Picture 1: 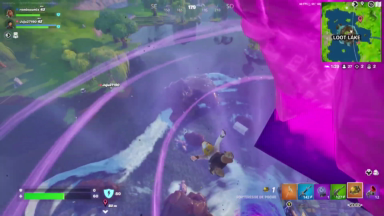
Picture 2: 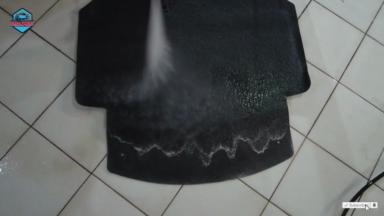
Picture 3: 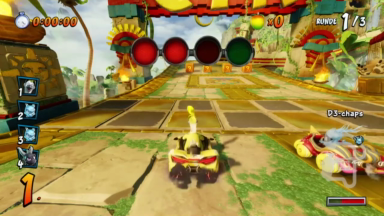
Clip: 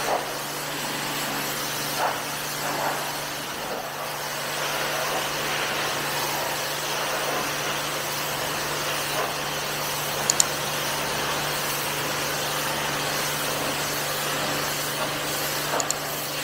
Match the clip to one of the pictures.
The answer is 2